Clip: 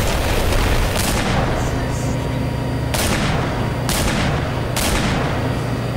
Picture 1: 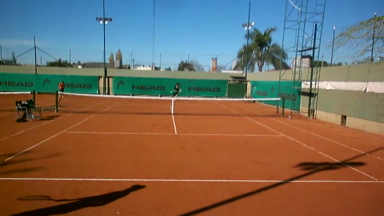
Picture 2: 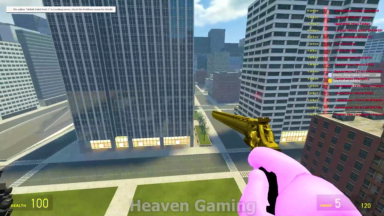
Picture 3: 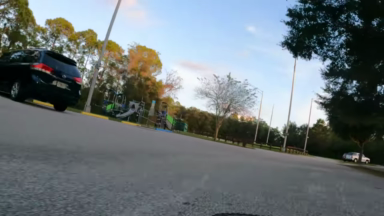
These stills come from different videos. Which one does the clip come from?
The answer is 2